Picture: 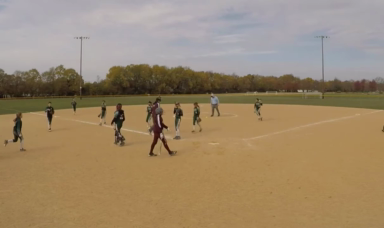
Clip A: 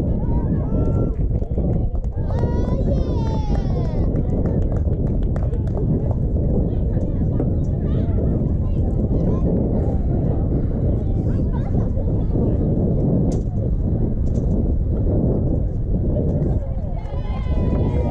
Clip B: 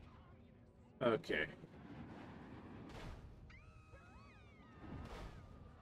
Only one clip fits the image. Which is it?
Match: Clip A